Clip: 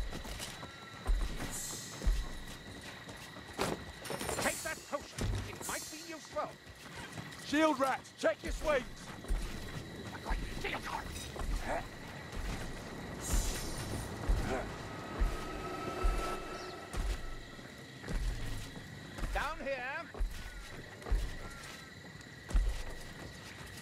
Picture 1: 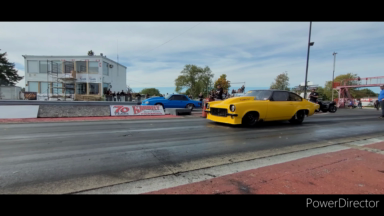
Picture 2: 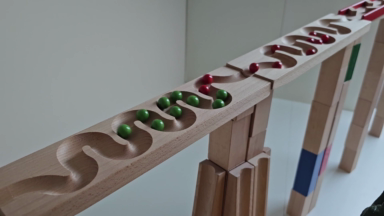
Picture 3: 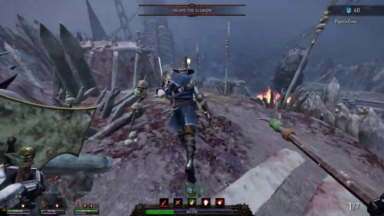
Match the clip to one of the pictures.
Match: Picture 3